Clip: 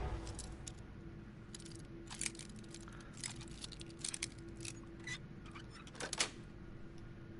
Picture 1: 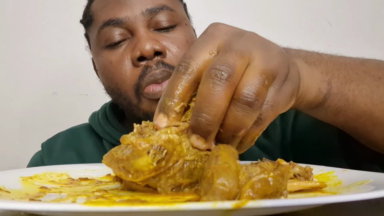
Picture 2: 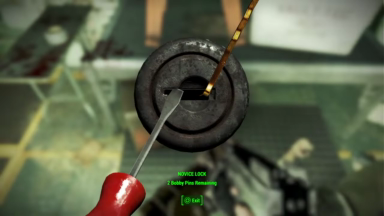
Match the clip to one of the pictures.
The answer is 2